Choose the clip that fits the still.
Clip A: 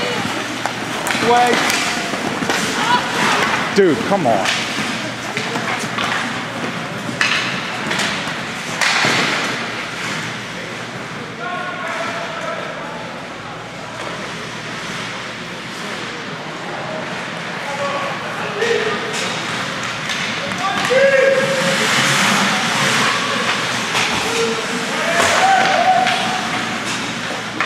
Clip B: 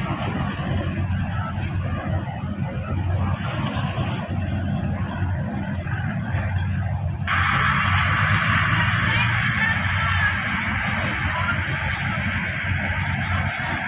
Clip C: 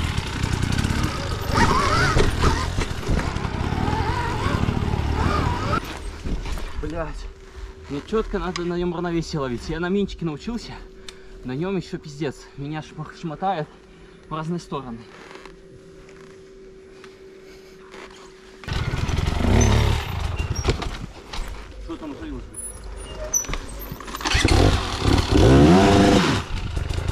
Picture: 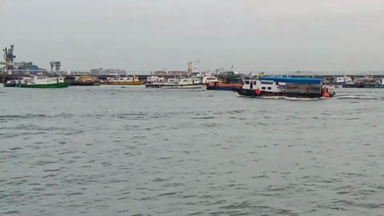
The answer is B